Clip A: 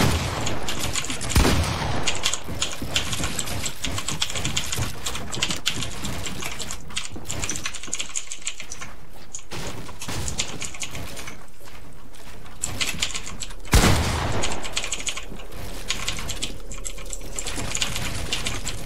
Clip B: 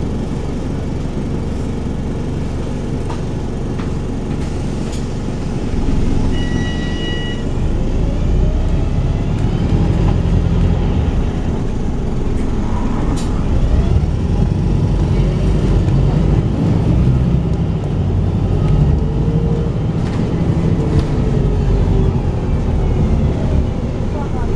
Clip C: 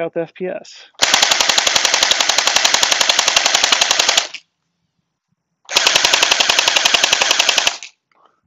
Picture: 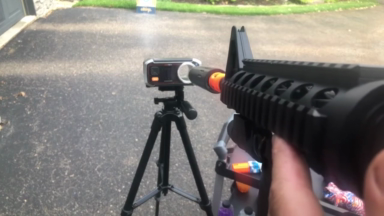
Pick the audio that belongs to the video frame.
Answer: C